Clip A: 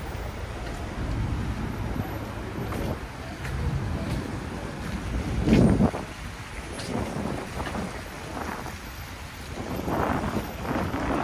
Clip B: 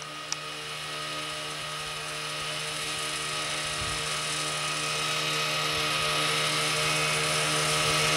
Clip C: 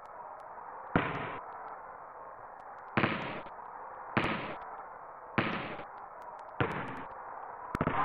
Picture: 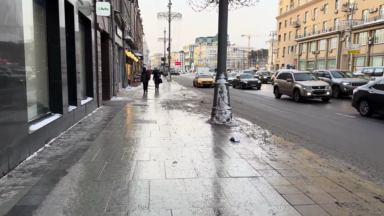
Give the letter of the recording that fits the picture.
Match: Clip A